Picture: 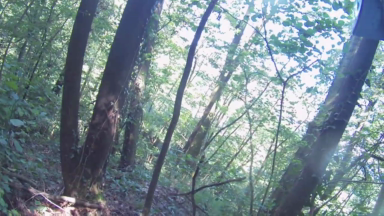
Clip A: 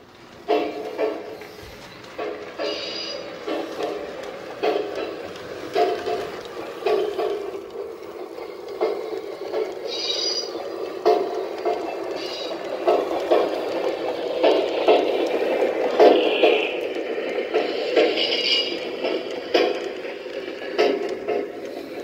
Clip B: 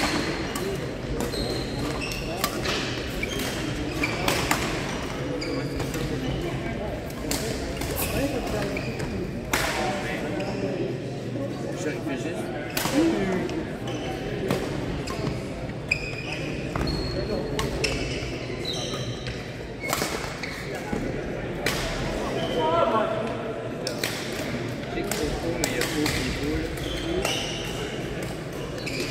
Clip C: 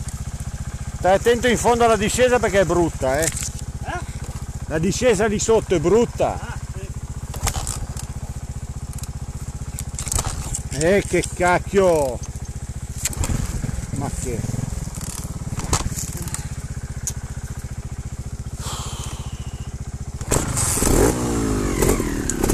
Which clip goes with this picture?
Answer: C